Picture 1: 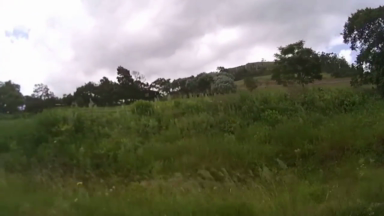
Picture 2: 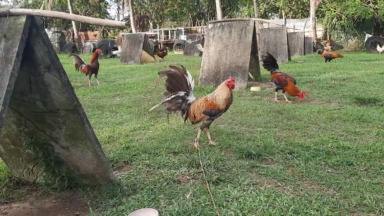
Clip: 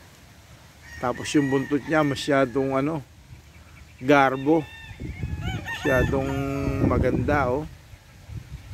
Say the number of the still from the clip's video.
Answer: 2